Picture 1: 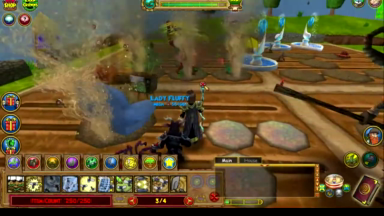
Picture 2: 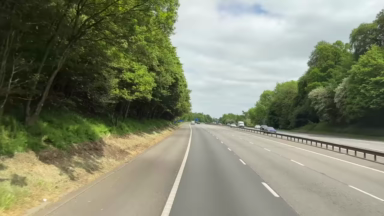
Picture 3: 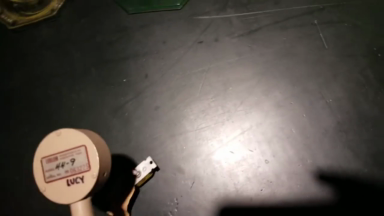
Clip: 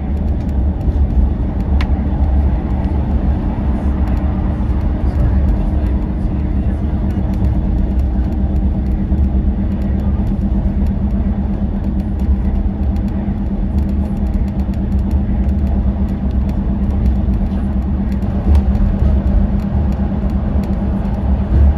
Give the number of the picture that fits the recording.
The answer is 2